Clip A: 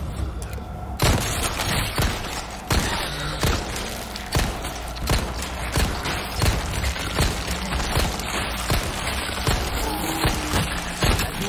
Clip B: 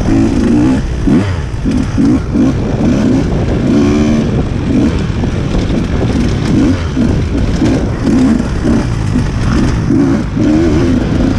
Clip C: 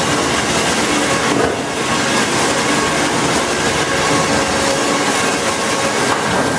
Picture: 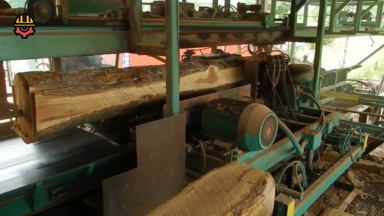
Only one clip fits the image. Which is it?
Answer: C